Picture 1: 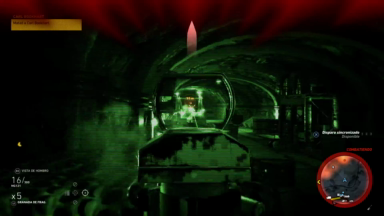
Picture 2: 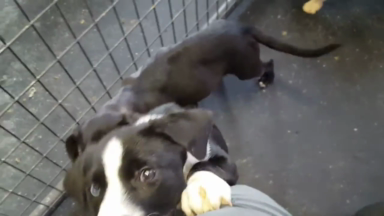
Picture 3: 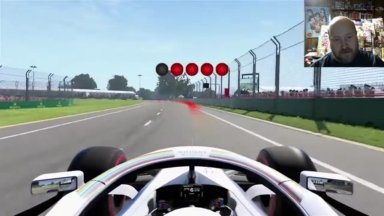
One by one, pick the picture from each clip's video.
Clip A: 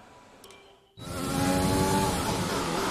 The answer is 3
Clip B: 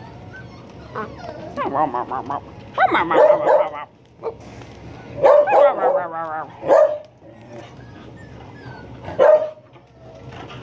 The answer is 2